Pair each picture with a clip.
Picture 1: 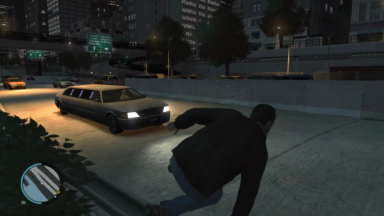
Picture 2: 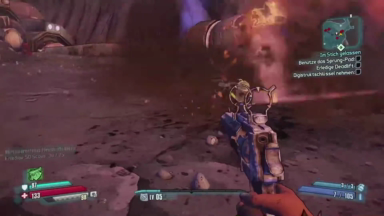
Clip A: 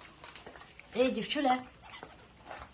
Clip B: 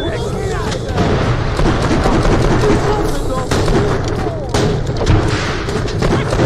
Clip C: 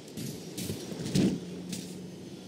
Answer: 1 C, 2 B